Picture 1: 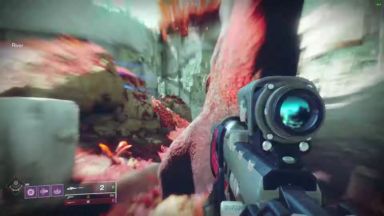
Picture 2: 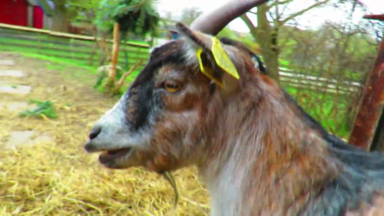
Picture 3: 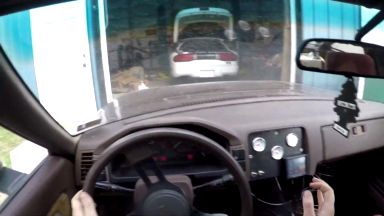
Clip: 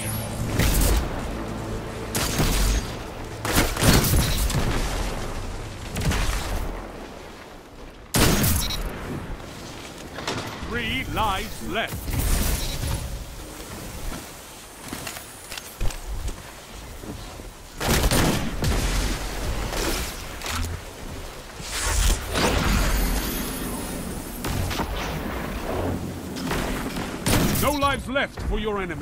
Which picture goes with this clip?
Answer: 1